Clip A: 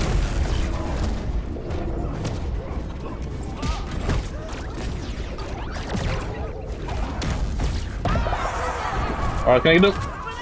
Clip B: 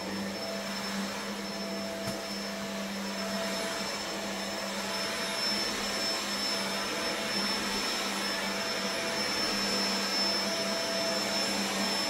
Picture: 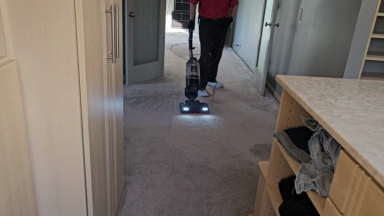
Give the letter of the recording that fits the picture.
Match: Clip B